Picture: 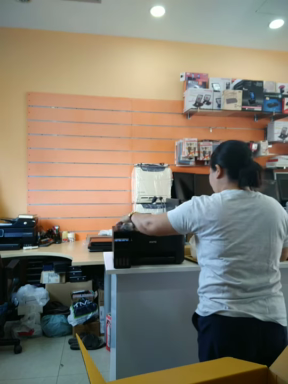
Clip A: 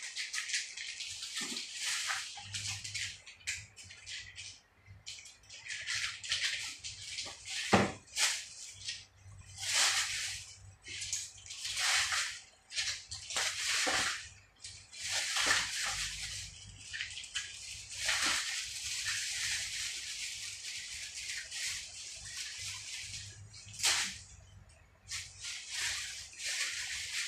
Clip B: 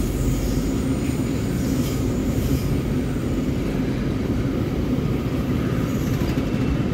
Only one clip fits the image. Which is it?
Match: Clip A